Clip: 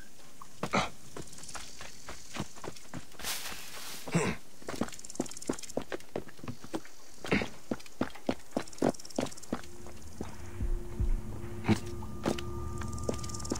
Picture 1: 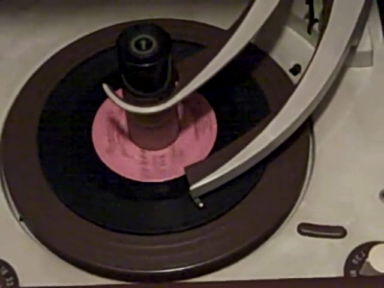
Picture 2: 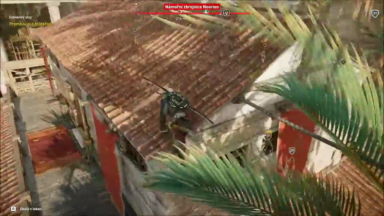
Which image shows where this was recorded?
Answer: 2